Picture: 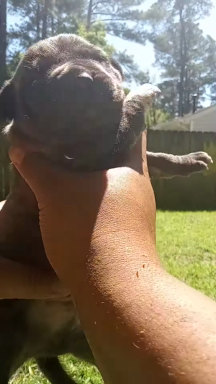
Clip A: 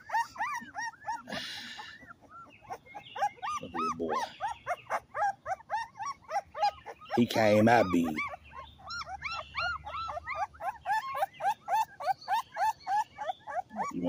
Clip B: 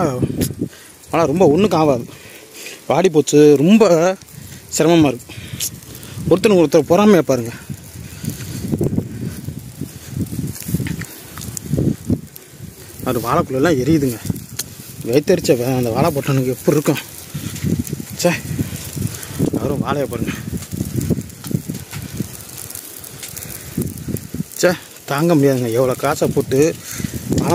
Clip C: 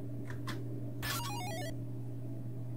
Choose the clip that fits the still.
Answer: A